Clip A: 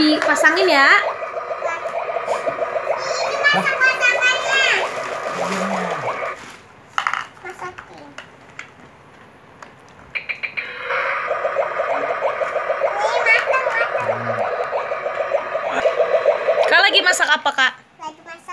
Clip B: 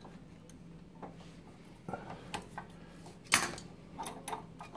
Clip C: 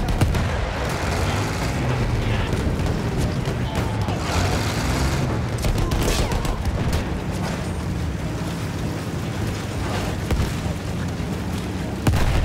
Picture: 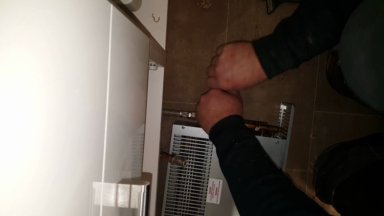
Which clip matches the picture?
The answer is B